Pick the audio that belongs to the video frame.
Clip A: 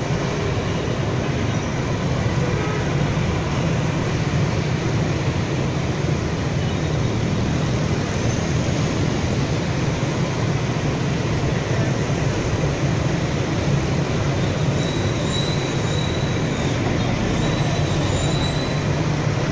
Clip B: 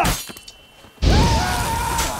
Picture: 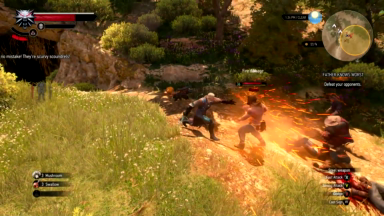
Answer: B